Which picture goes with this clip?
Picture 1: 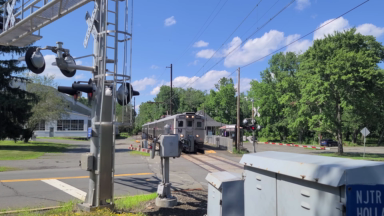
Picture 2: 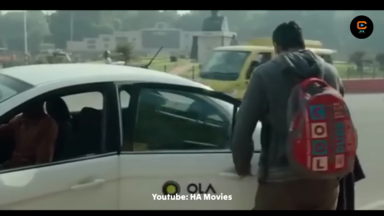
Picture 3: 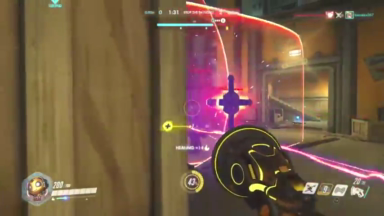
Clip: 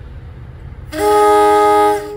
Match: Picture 1